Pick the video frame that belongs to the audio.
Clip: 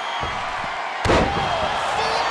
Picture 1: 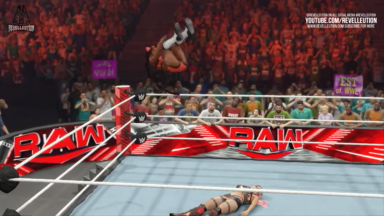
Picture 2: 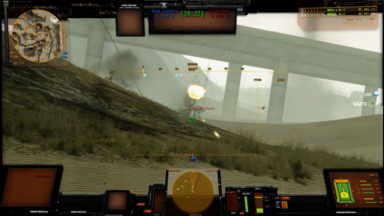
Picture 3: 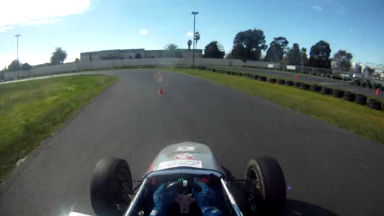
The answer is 1